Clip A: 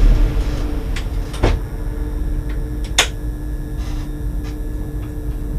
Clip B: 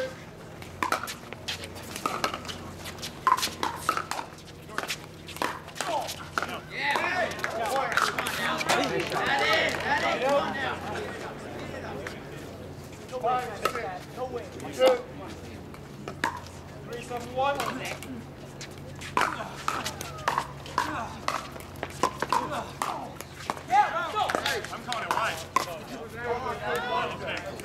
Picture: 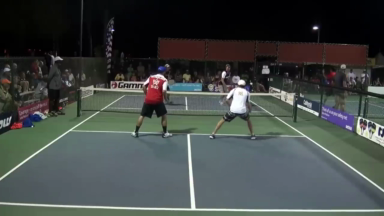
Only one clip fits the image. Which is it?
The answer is B